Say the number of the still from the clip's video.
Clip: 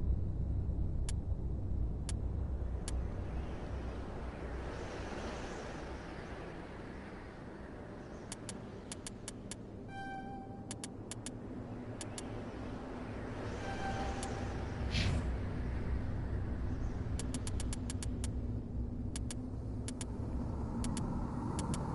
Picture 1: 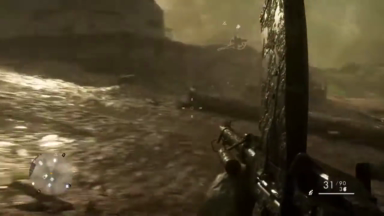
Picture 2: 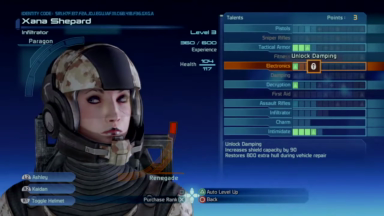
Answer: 2